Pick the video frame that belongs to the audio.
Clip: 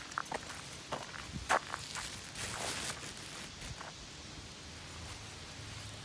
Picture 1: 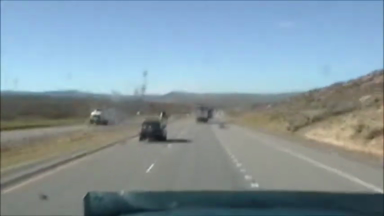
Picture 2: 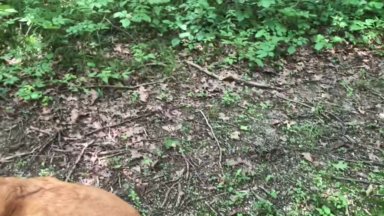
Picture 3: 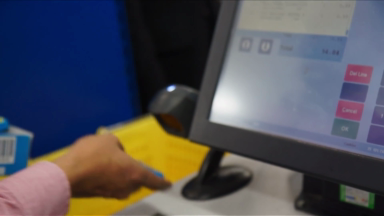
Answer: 2